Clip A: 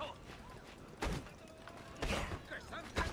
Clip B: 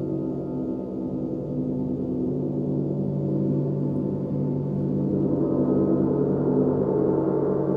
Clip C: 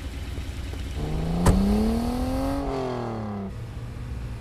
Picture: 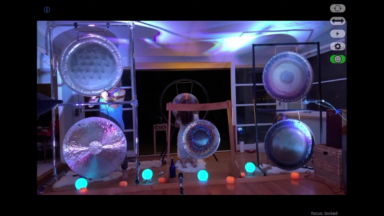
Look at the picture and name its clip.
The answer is B